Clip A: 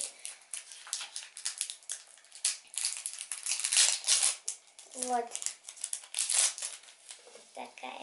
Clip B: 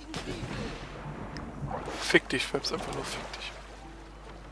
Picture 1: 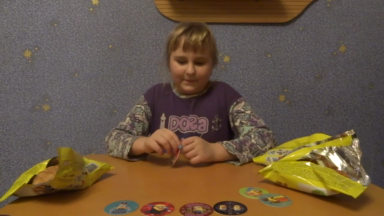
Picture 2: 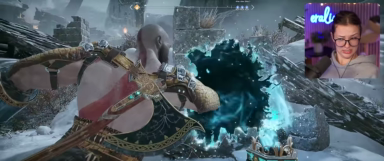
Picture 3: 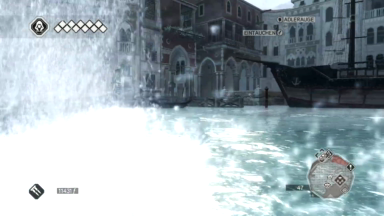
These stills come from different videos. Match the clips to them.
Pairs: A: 1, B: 3